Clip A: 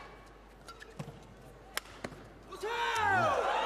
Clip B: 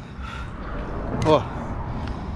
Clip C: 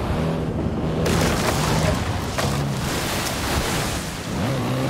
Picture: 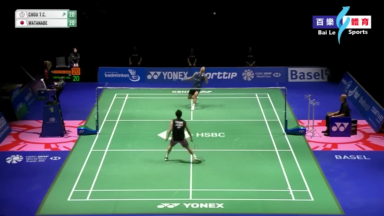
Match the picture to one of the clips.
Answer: A